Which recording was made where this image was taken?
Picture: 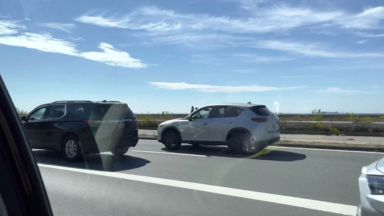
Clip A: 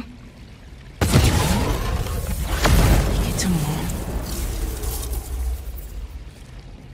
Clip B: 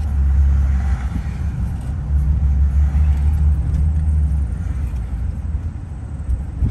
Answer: B